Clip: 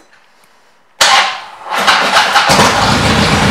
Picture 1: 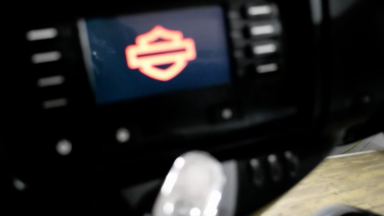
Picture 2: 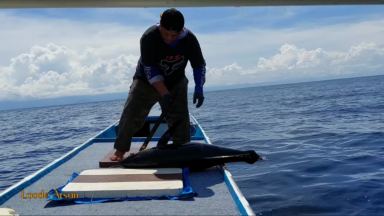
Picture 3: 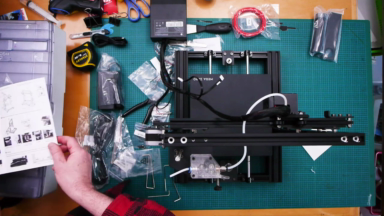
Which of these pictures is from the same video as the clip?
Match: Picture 1